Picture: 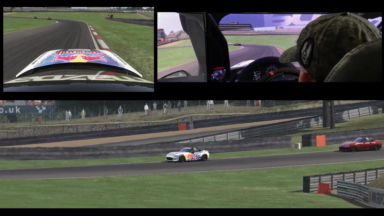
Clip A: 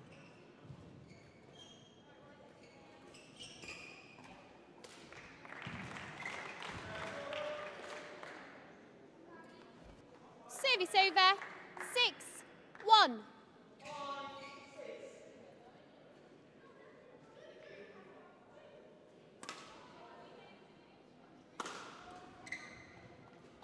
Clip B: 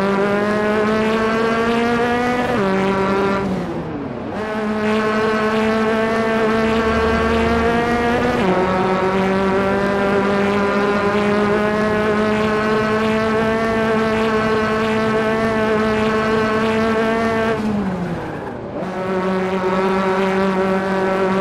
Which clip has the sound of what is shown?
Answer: B